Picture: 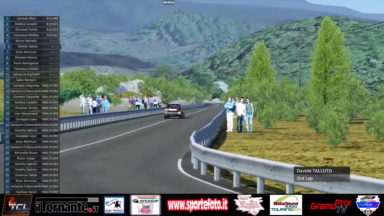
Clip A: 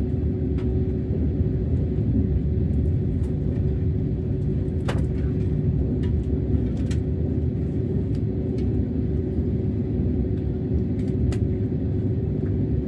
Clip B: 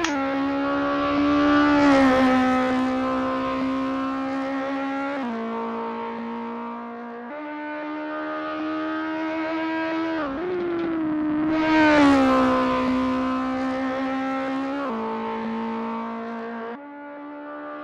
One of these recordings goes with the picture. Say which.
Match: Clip B